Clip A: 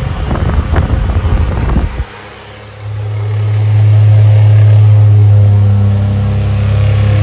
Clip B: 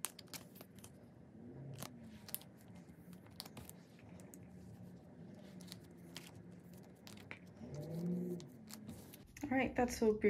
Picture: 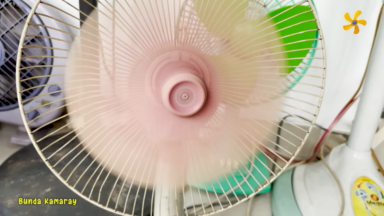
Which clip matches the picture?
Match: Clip A